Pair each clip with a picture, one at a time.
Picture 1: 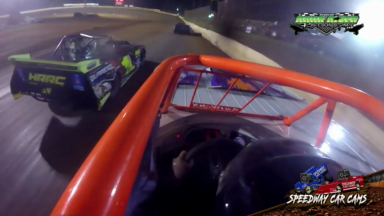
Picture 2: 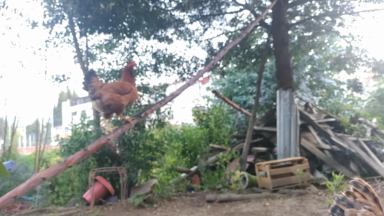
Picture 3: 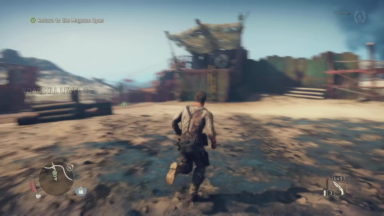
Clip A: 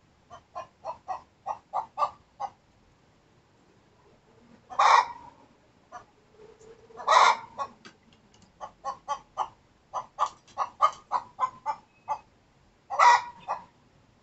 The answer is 2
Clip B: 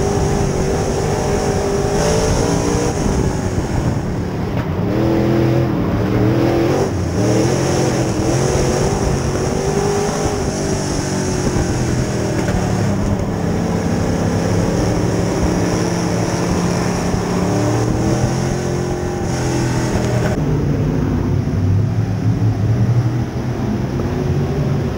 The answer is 1